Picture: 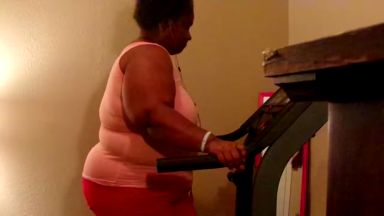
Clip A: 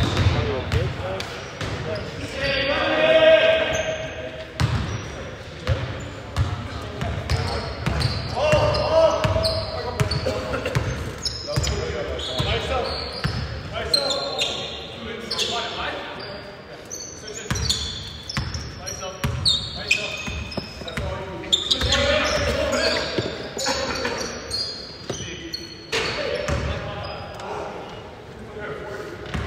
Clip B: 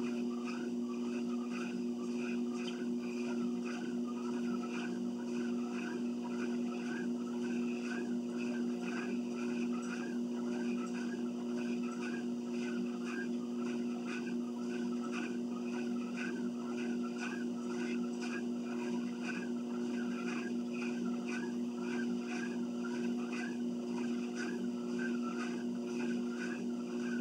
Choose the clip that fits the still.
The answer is B